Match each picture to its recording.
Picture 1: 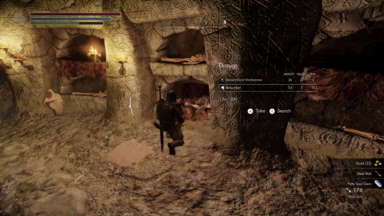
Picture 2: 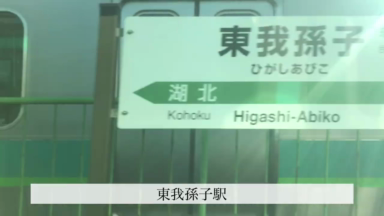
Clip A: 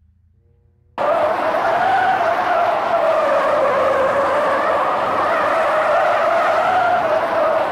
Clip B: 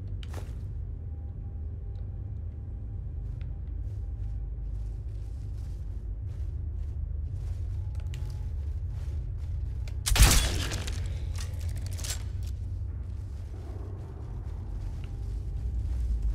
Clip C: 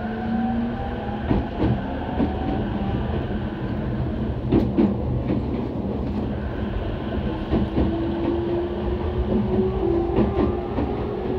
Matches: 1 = B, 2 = C